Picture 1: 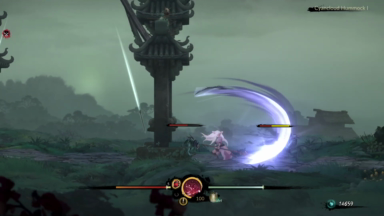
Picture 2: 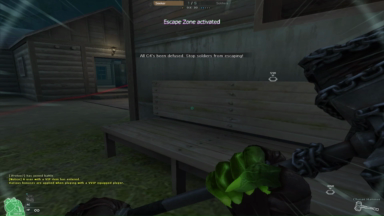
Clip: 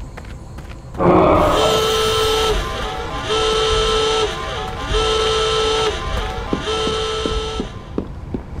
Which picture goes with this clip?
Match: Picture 2